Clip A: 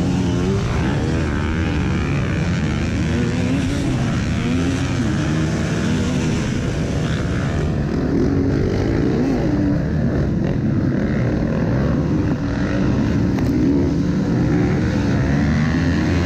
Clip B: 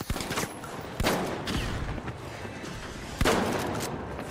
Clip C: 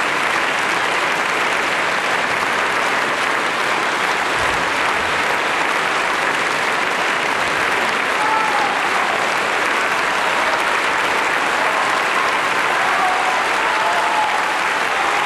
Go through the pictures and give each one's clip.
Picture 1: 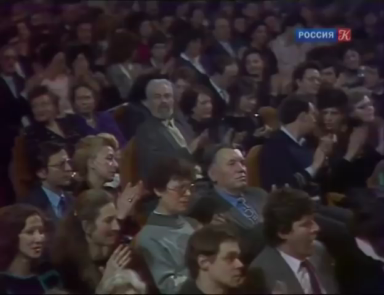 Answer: C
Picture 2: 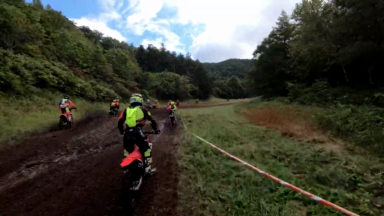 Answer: A